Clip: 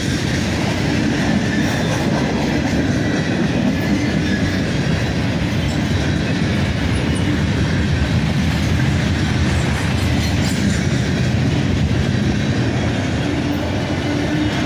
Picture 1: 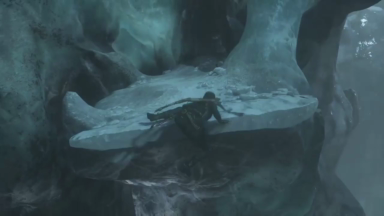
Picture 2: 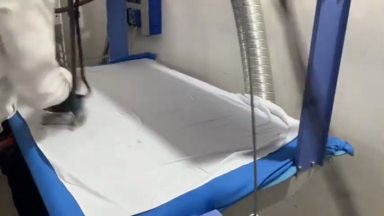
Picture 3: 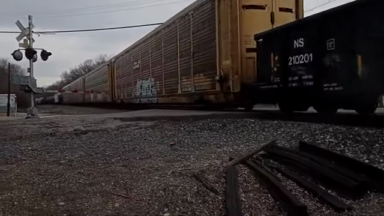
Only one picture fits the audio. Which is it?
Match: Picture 3